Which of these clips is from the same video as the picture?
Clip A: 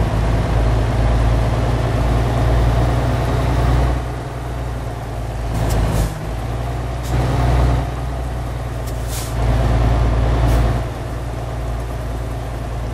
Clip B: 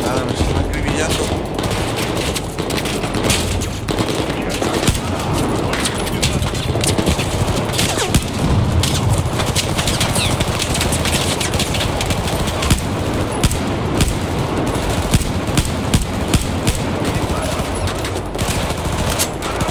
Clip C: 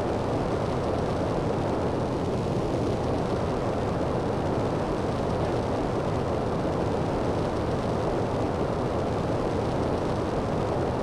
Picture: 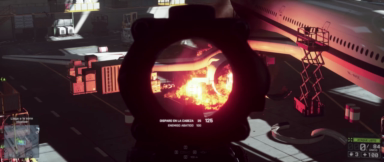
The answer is B